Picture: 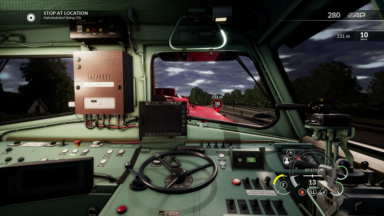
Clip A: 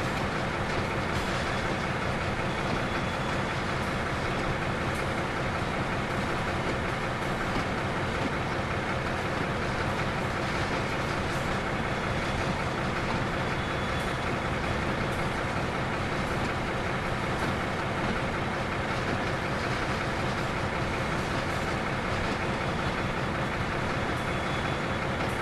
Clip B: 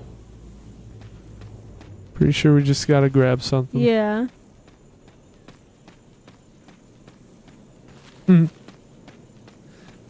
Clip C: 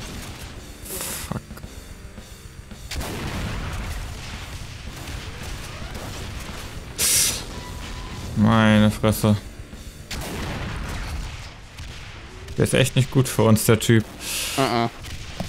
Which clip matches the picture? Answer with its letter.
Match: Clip A